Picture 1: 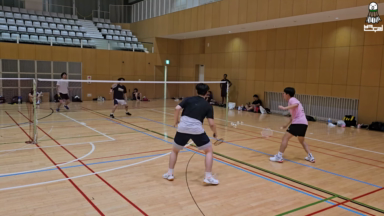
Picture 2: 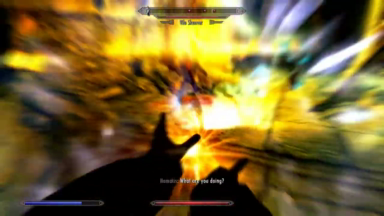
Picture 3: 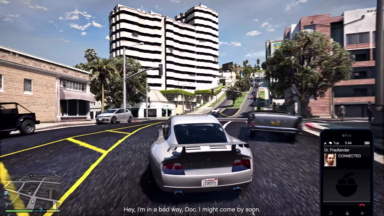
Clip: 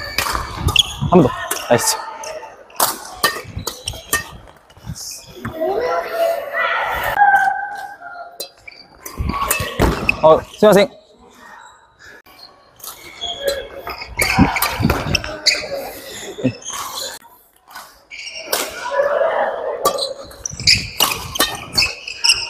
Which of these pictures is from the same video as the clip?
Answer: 1